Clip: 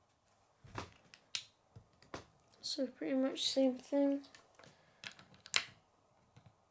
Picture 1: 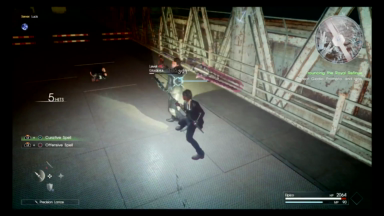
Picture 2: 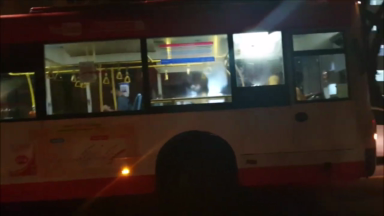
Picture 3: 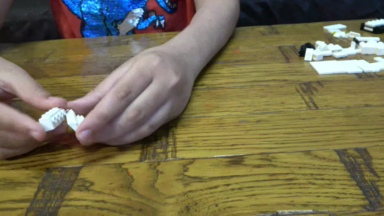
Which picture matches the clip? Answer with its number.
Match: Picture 3